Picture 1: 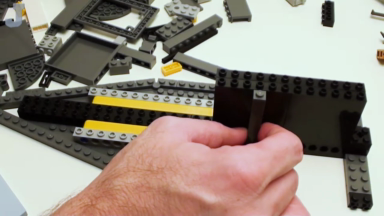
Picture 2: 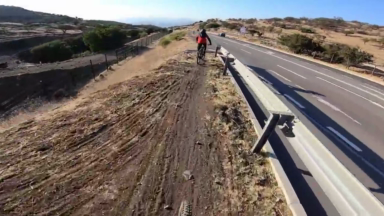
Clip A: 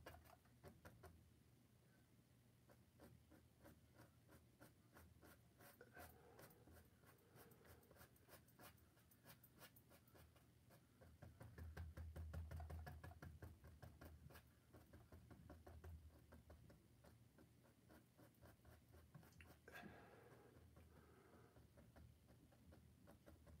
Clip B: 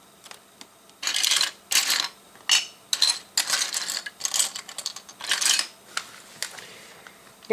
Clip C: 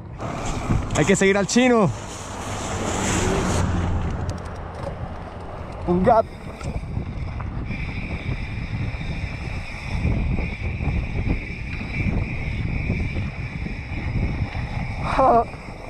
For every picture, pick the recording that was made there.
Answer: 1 B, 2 C